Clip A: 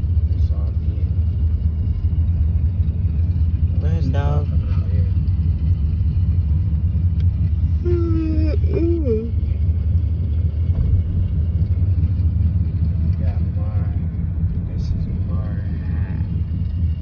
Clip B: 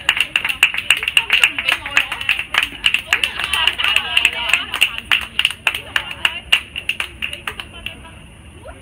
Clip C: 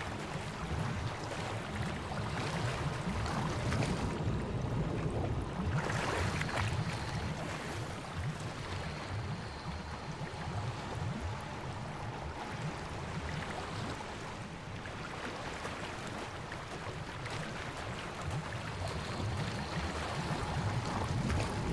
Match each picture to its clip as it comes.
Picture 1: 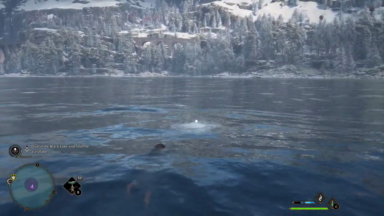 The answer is C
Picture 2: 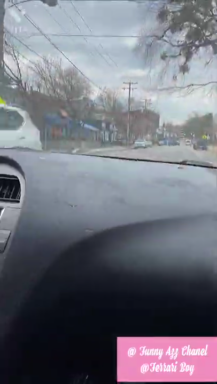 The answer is A